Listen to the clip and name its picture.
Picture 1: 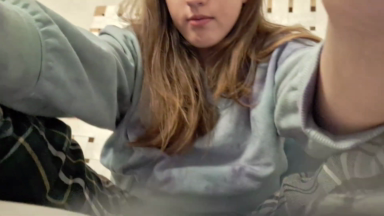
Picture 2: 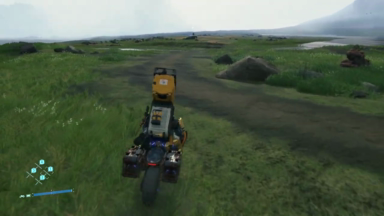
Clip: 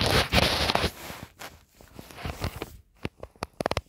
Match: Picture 1